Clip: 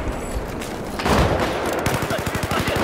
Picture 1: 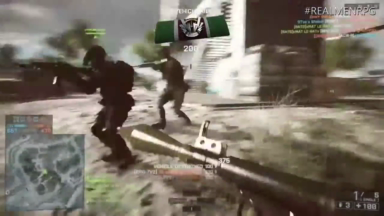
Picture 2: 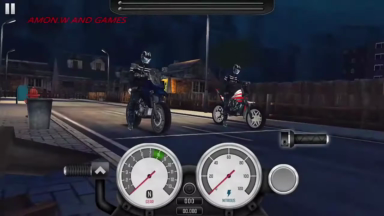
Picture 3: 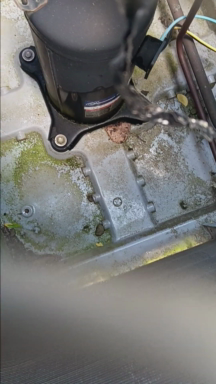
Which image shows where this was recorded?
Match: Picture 1